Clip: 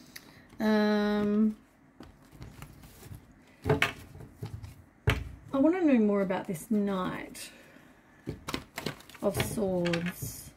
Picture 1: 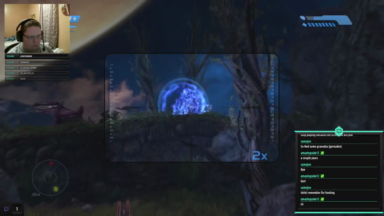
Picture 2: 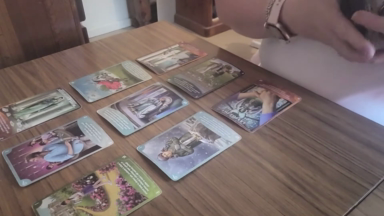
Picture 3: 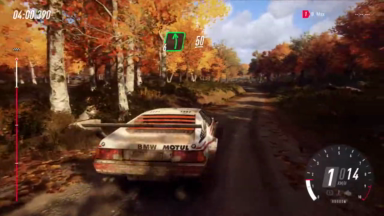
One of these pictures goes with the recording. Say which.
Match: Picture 2